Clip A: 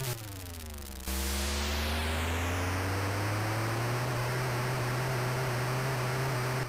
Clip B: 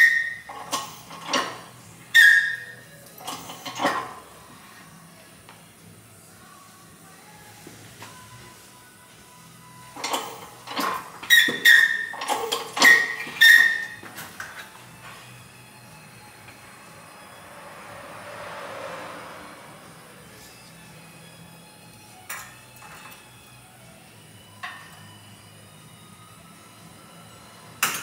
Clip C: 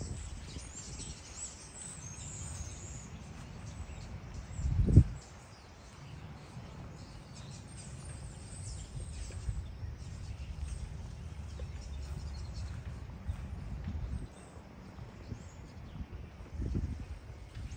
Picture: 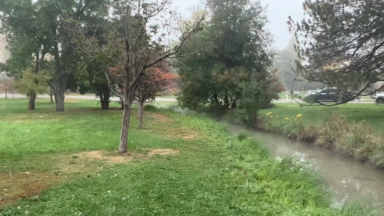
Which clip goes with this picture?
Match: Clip C